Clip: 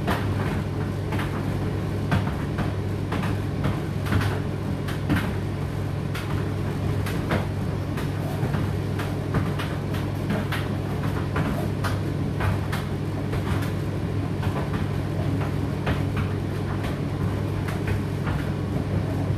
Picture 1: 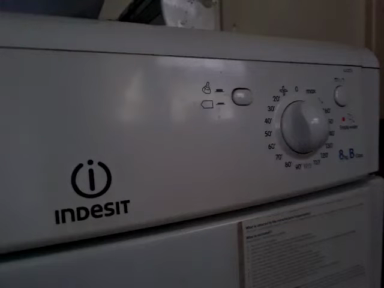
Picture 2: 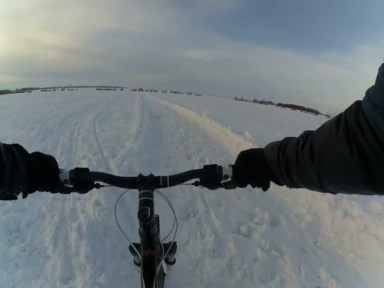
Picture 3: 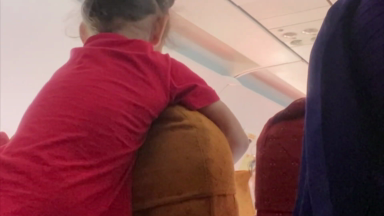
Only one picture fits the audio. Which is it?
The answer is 1